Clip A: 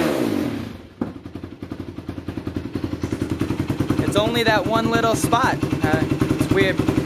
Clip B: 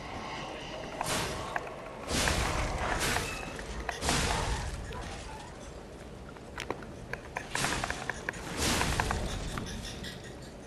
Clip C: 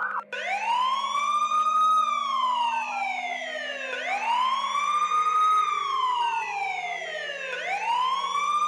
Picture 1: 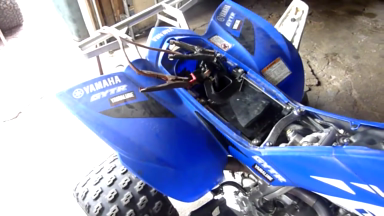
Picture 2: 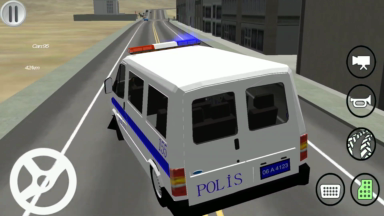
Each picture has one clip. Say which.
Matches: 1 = A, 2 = C